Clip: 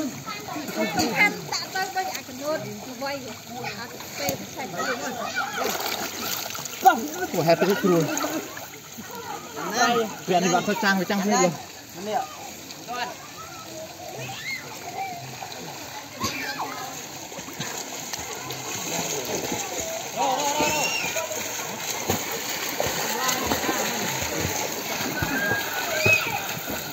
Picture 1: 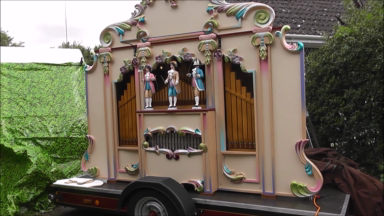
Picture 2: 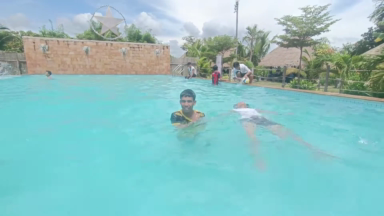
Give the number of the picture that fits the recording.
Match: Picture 2